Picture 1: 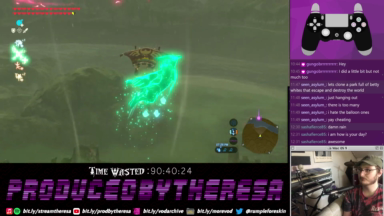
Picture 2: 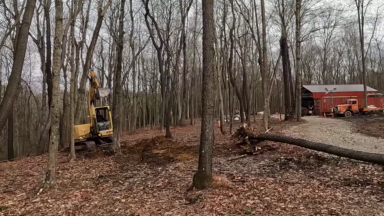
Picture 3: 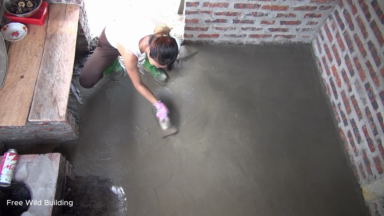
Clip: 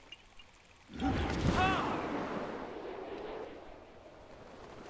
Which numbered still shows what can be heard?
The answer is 1